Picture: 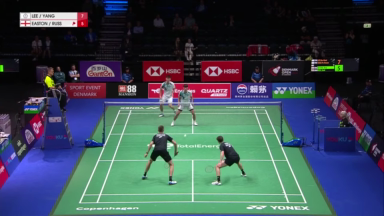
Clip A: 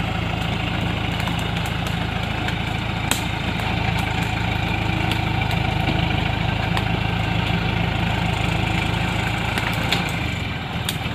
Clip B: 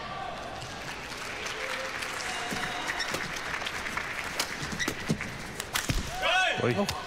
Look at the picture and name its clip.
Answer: B